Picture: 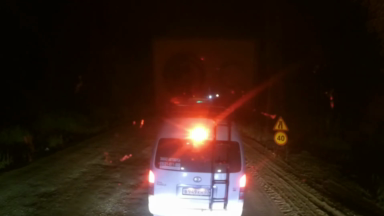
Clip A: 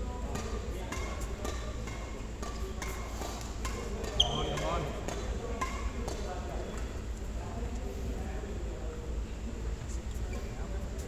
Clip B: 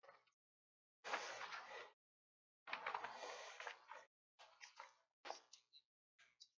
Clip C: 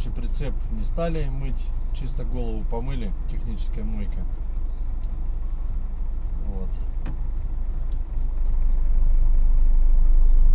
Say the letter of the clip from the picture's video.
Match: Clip C